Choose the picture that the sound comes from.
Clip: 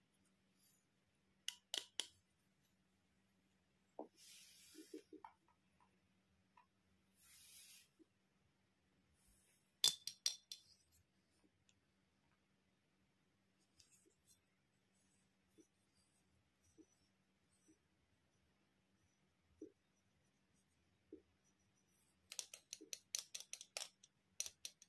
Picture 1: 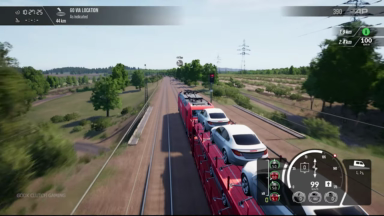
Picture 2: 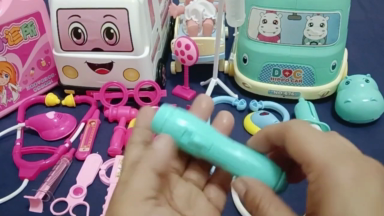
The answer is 2